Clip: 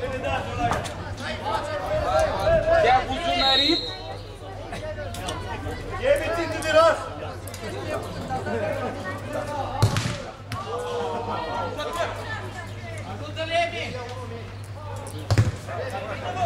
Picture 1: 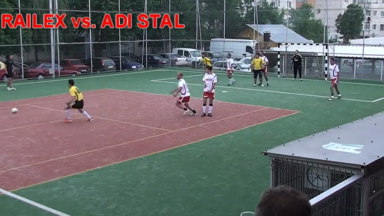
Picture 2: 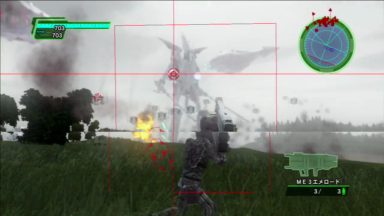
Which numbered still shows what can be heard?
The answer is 1